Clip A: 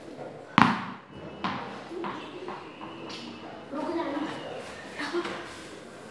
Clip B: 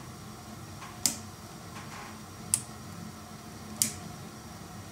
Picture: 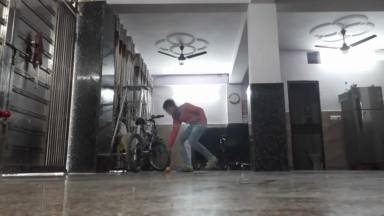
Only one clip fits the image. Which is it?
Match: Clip A